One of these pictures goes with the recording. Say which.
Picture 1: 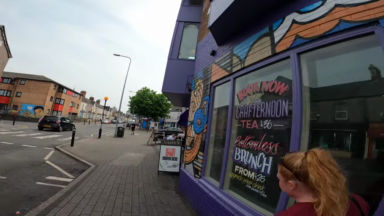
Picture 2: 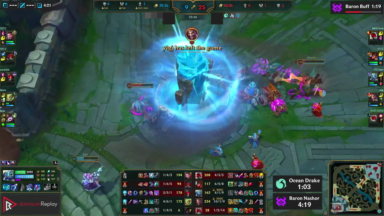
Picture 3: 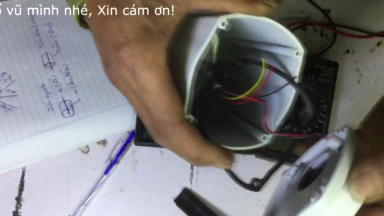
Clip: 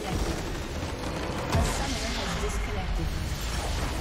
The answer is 2